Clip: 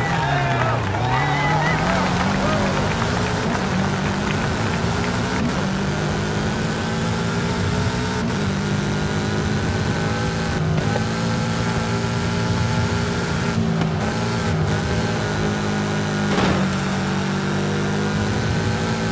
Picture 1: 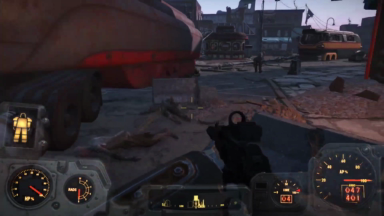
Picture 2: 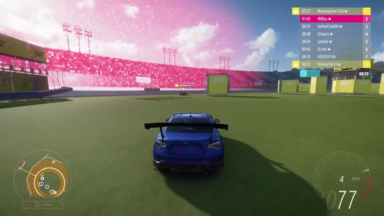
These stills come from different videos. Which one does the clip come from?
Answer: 2